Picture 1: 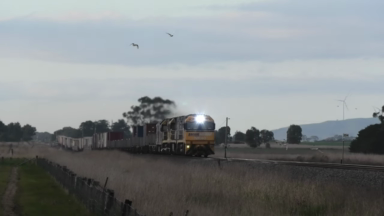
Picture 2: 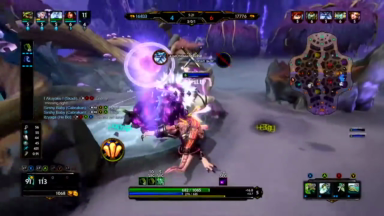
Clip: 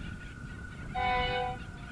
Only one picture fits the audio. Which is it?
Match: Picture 1